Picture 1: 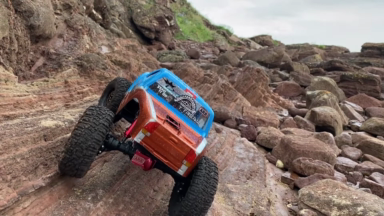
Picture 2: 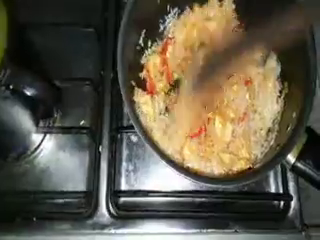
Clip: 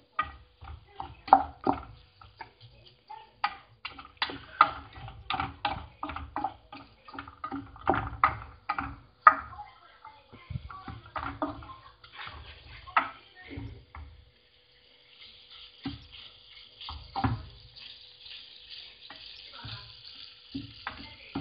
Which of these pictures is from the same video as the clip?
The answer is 2